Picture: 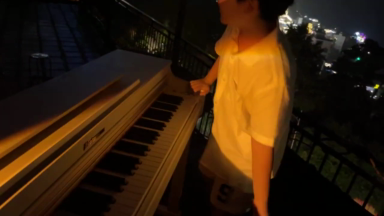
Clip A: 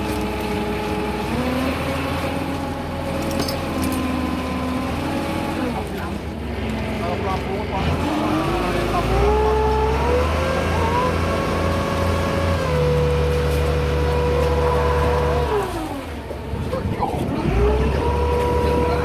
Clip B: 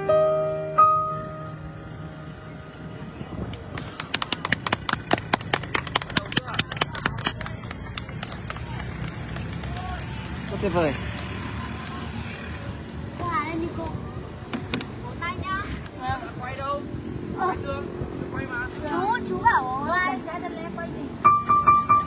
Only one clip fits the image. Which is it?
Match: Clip B